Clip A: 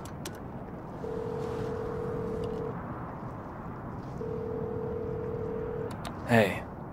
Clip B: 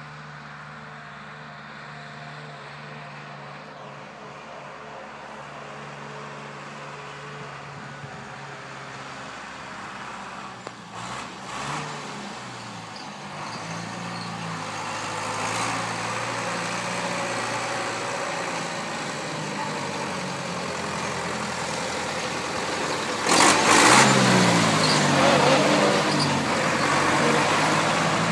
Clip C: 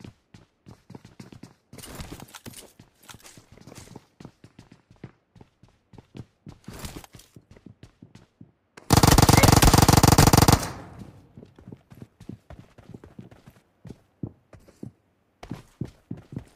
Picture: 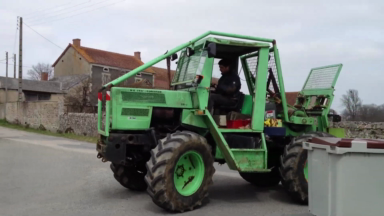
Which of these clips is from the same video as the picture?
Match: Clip B